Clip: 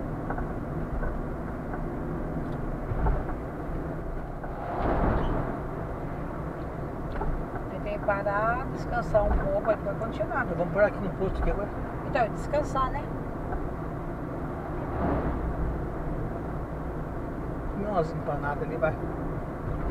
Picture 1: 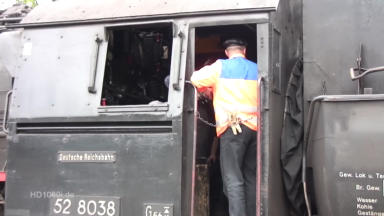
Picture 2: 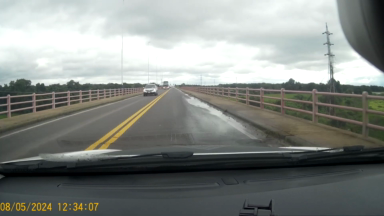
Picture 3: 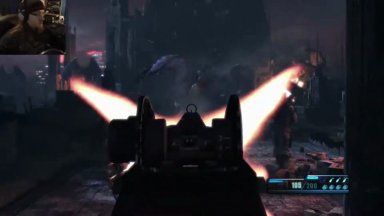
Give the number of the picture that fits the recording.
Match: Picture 2